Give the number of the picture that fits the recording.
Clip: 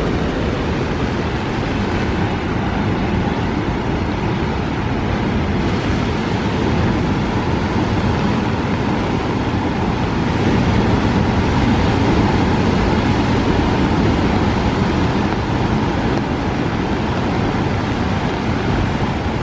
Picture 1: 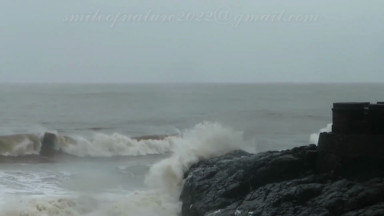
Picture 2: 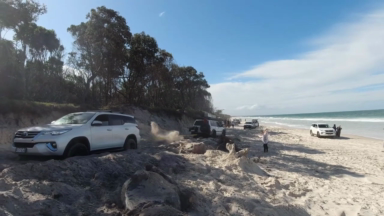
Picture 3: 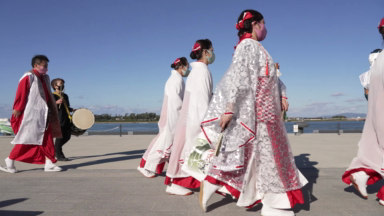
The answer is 1